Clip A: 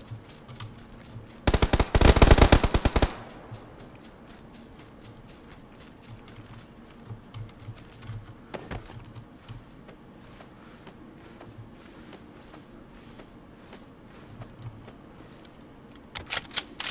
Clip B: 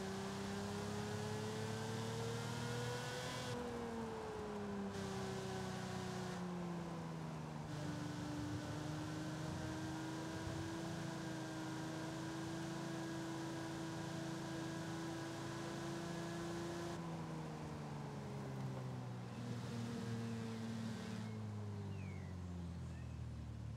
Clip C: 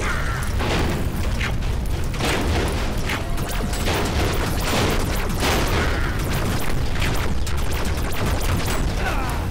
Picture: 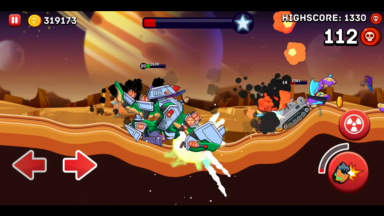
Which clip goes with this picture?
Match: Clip C